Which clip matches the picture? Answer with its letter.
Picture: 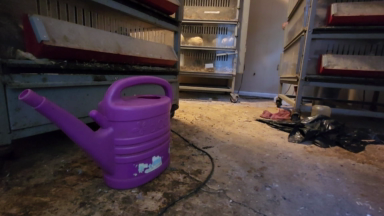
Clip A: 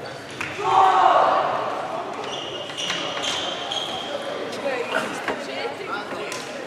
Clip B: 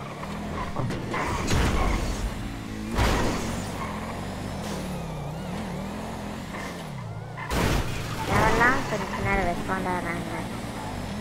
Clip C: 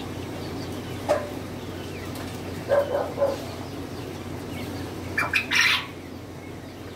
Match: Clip C